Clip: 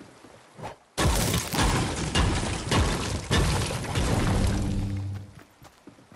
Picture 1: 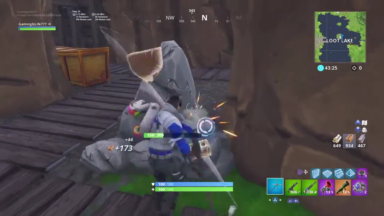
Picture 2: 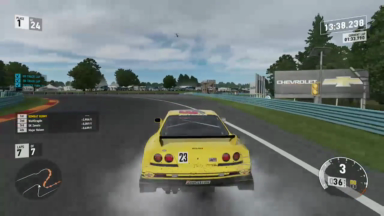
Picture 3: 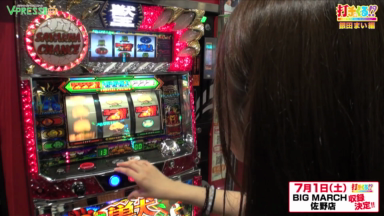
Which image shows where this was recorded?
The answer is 1